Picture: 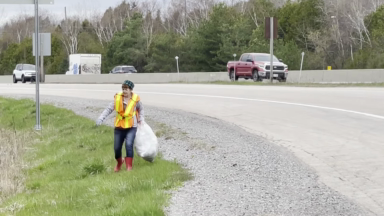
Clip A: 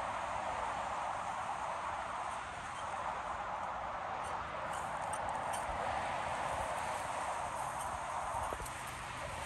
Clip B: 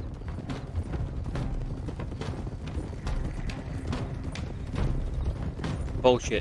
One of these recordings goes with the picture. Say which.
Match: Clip A